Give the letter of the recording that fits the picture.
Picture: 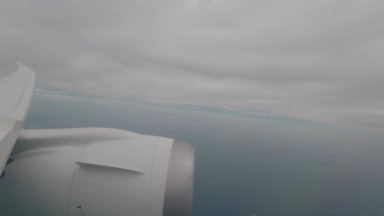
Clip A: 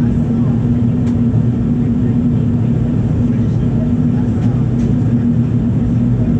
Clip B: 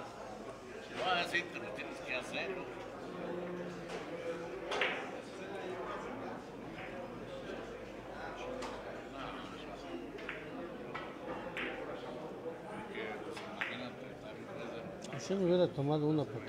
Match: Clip A